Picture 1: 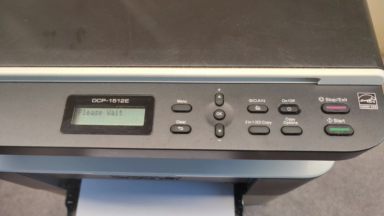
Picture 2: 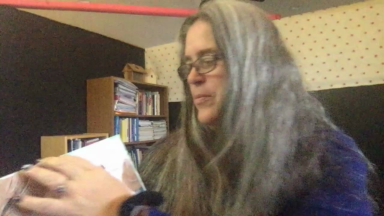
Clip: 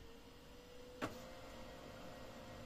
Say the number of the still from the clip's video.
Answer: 1